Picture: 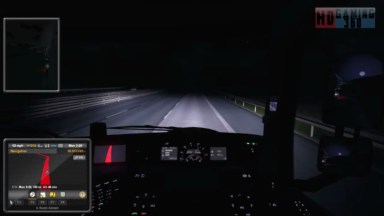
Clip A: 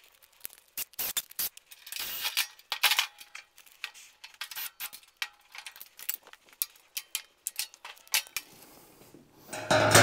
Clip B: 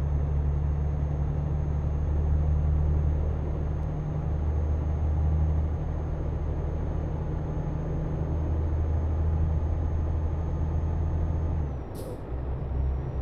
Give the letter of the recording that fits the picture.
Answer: B